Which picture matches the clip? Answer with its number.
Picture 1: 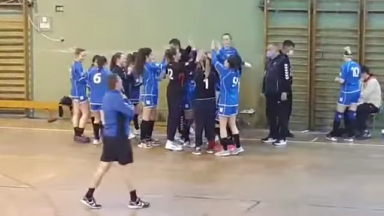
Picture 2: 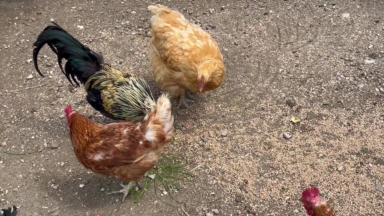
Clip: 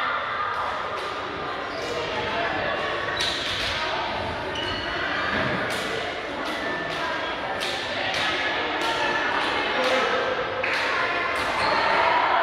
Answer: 1